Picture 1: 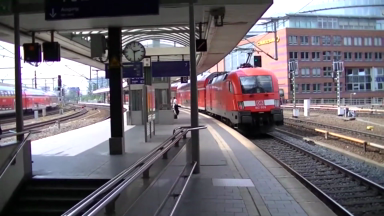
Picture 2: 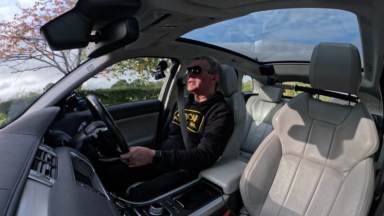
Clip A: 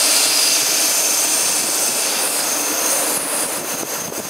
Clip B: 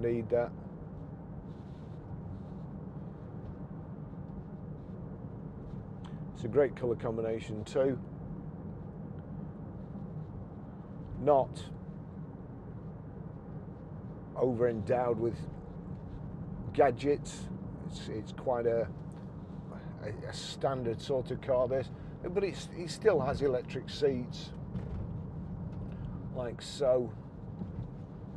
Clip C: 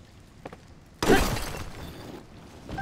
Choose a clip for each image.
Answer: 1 A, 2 B